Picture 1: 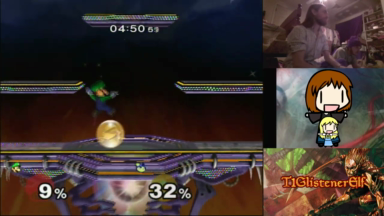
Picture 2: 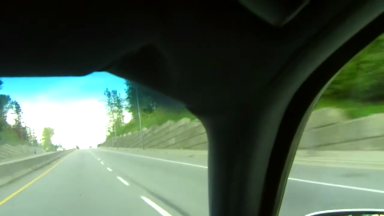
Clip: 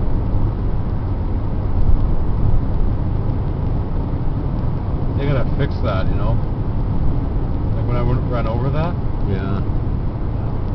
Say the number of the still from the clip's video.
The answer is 2